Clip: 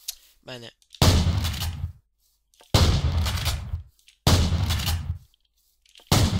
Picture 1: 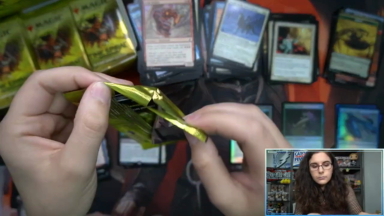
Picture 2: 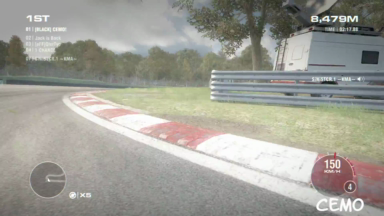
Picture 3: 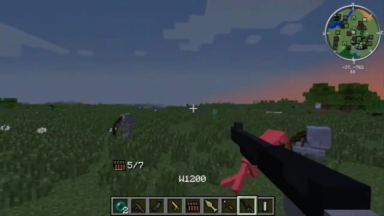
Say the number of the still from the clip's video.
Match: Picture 3